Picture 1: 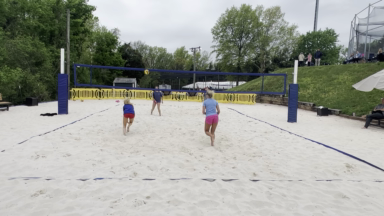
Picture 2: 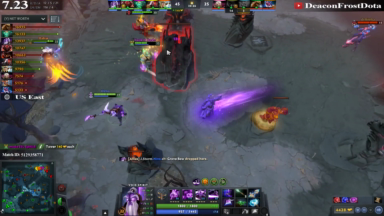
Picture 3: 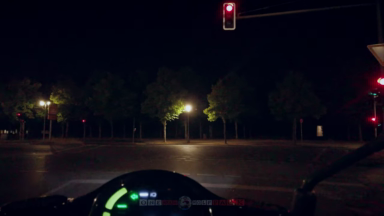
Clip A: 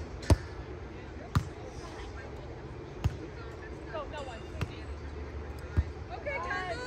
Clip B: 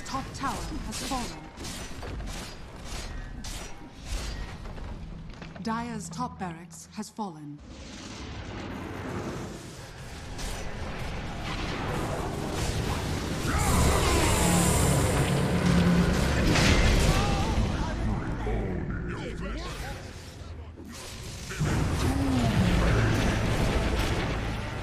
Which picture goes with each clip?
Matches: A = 1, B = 2